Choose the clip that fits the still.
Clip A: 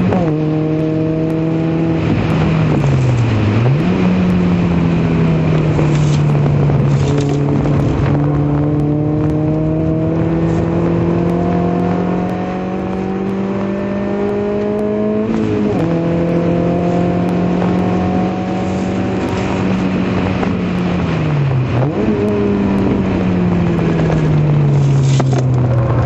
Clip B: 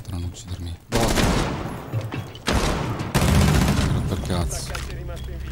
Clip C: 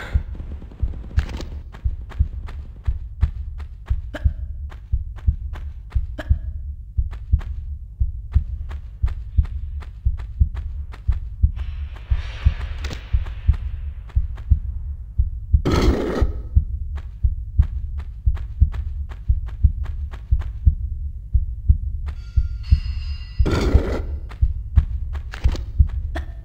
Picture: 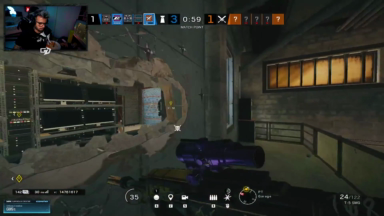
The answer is B